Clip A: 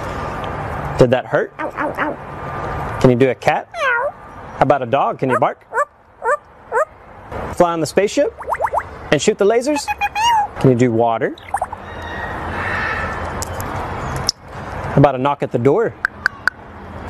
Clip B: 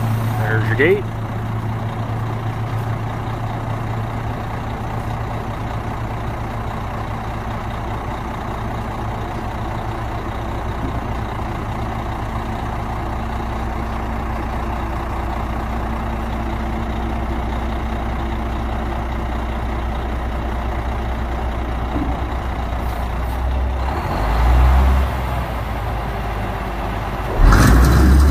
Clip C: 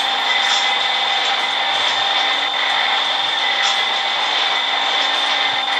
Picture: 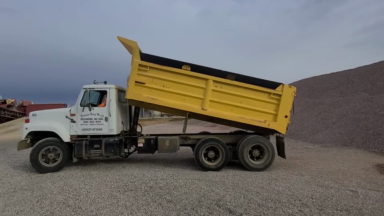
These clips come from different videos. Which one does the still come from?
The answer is B